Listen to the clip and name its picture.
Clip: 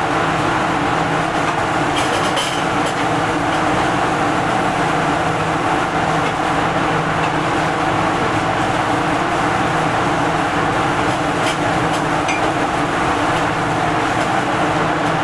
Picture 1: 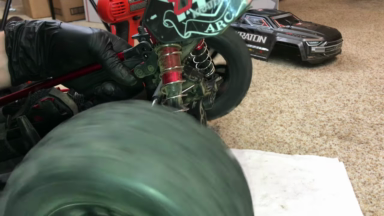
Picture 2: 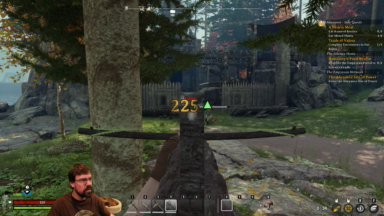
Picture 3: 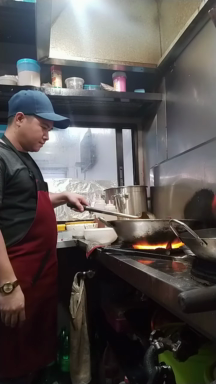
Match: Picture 3